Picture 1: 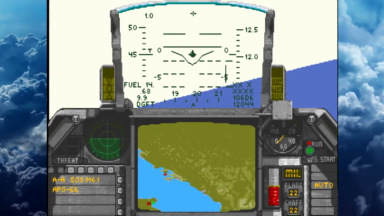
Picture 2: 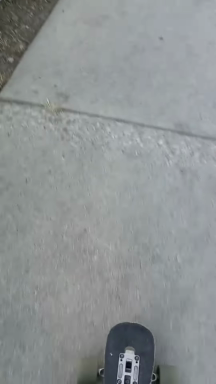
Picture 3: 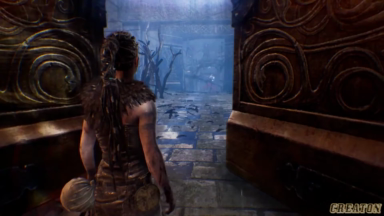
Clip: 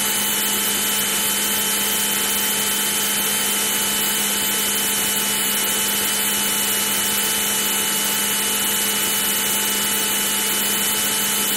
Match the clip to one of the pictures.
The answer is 1